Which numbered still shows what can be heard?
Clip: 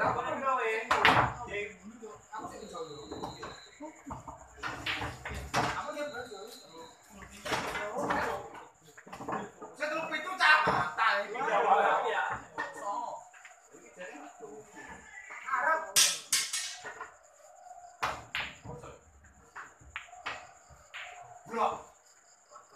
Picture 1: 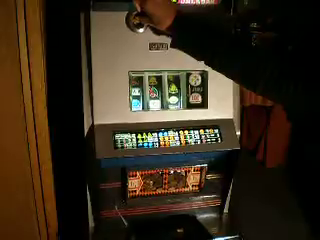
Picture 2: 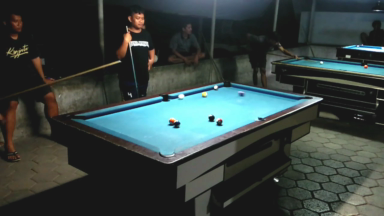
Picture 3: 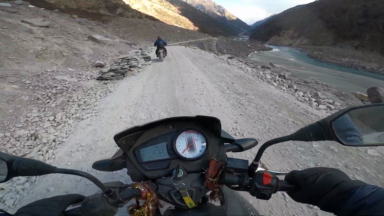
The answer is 2